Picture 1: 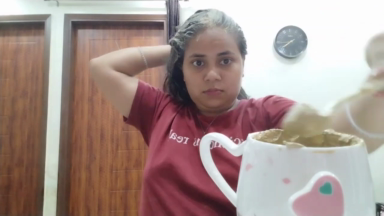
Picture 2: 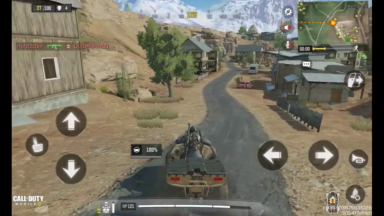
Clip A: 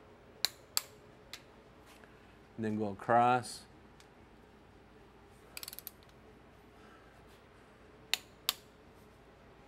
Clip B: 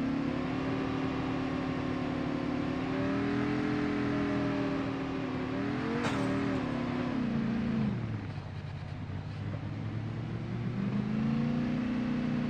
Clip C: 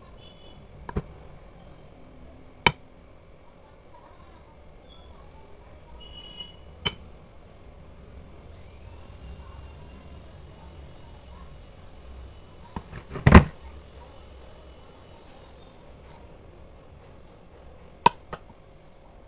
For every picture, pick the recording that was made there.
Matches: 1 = C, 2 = B